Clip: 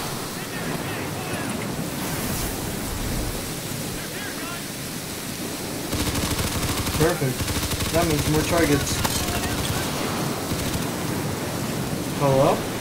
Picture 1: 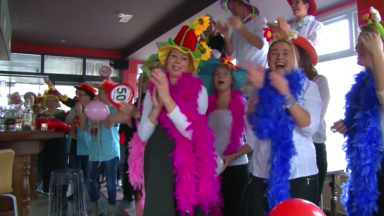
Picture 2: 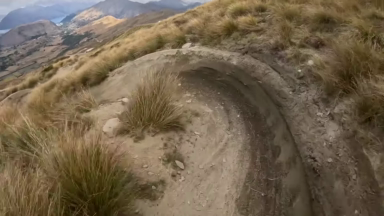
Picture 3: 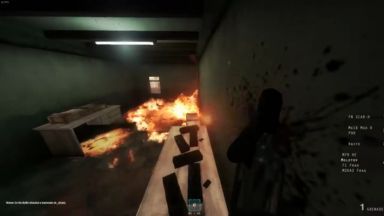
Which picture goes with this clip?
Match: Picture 3